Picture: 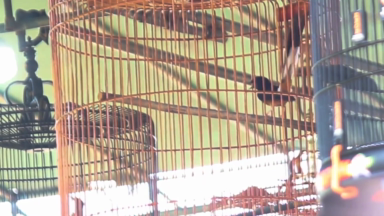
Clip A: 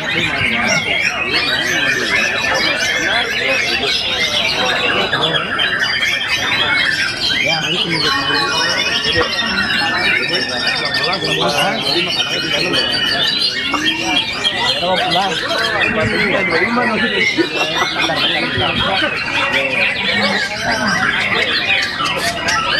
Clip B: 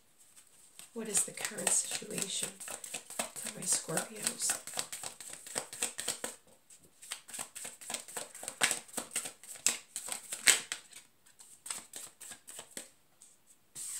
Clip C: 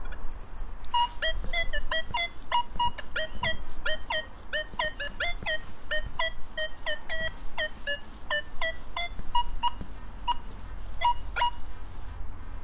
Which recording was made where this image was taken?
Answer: A